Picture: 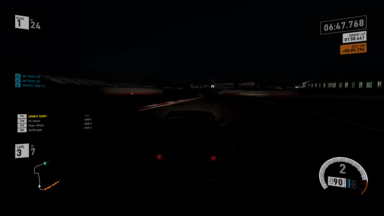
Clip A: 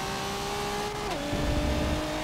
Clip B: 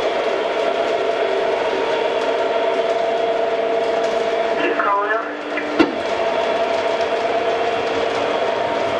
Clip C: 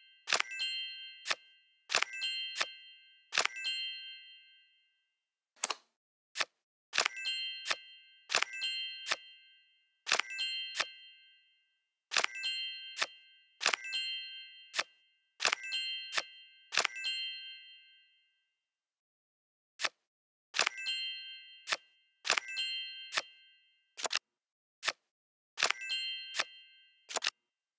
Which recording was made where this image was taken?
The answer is A